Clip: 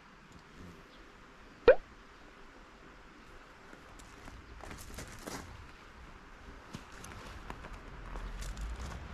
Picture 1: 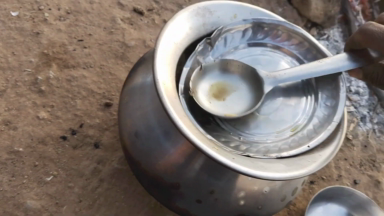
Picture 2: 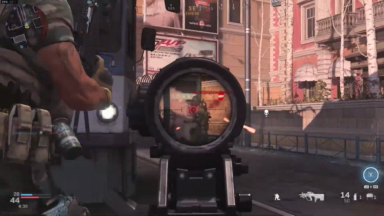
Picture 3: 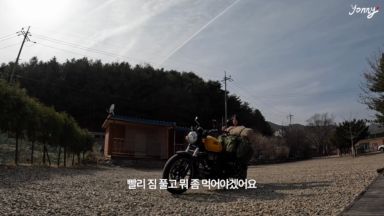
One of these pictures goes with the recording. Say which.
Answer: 3